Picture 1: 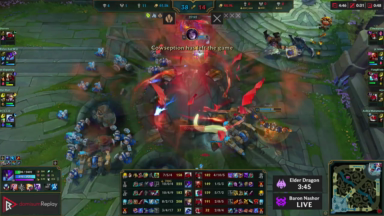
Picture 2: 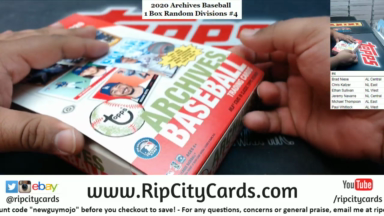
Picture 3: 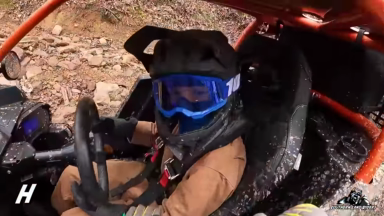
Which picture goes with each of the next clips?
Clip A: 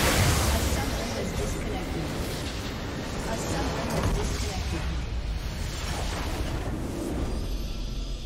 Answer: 1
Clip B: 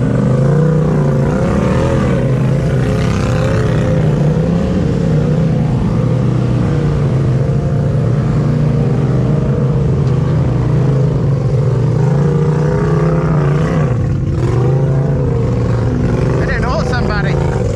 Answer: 3